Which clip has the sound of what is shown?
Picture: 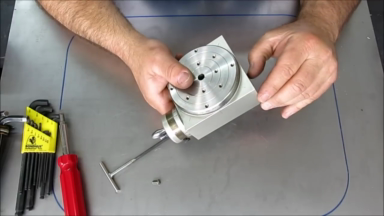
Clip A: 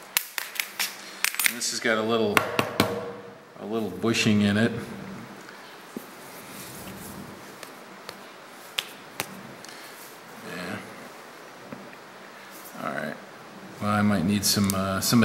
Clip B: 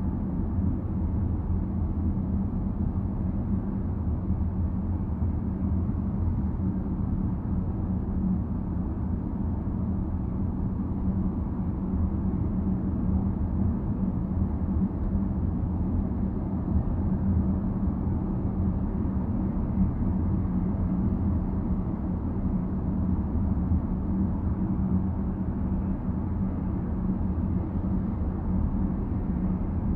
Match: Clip A